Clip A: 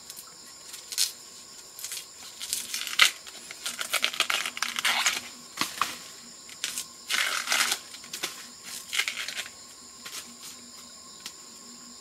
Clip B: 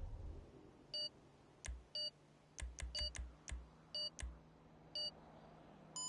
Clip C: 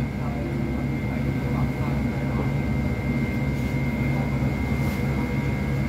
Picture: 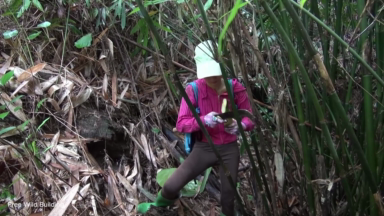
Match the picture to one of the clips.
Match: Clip A